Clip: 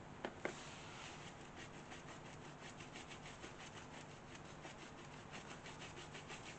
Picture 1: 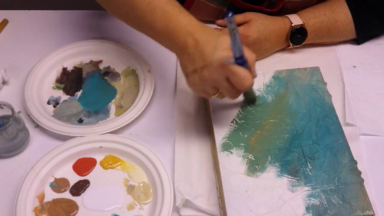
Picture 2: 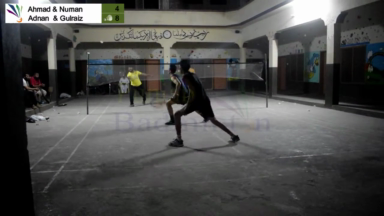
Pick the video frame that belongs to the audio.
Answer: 1